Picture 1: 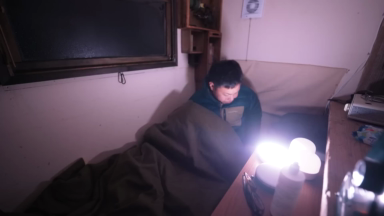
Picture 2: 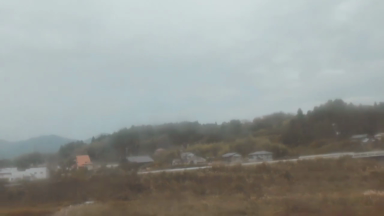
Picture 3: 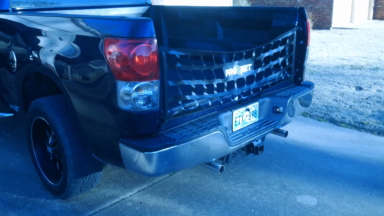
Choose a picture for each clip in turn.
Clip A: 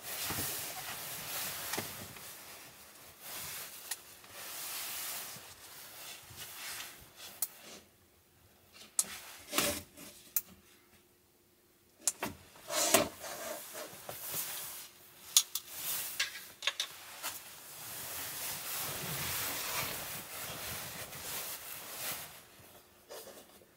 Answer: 1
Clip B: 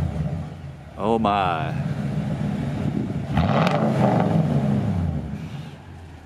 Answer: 3